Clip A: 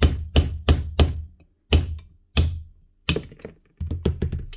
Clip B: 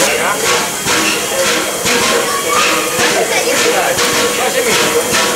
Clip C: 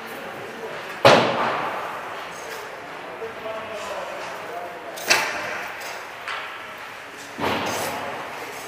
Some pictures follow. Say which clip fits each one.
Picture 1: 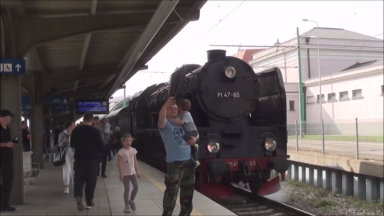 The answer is B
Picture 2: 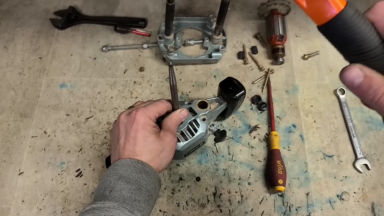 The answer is A